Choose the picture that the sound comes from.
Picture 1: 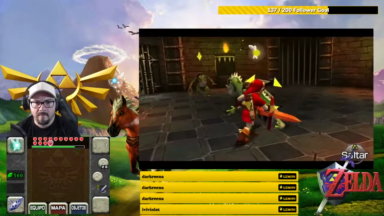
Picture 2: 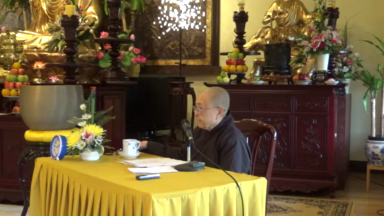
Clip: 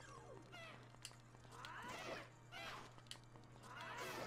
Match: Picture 1